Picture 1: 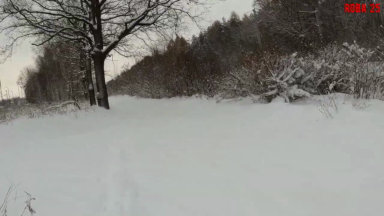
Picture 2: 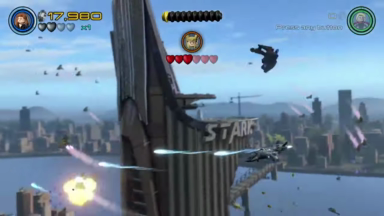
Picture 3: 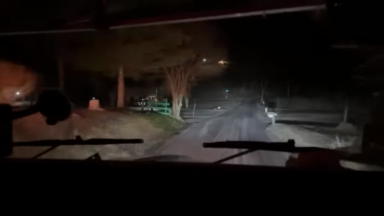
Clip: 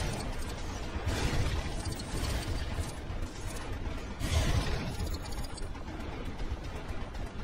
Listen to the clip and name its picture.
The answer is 2